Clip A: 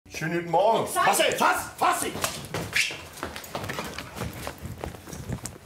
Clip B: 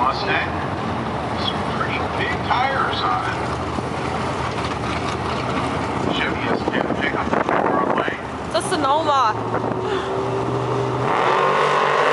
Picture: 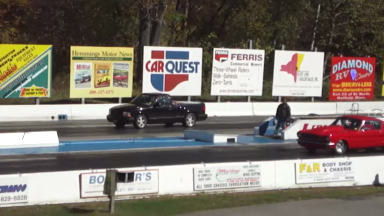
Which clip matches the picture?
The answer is B